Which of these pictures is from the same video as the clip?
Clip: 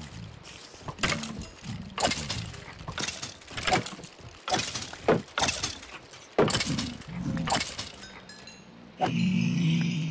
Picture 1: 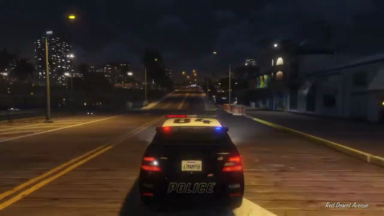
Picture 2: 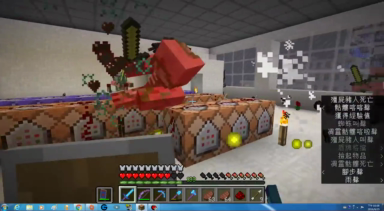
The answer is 2